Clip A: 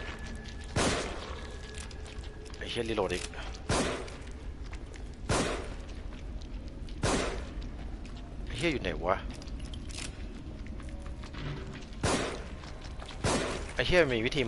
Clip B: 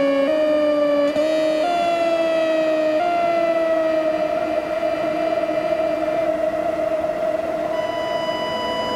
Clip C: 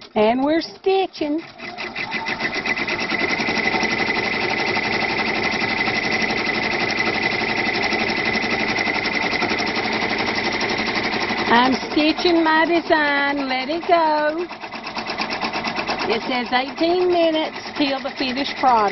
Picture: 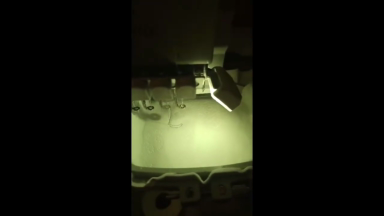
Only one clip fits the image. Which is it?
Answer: C